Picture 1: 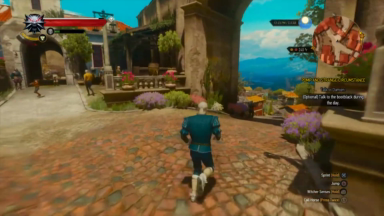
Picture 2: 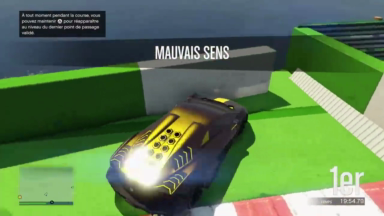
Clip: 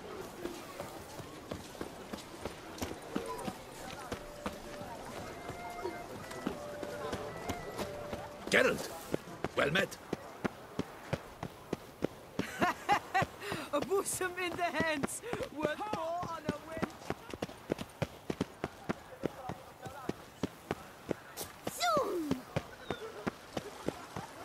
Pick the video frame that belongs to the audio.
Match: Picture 1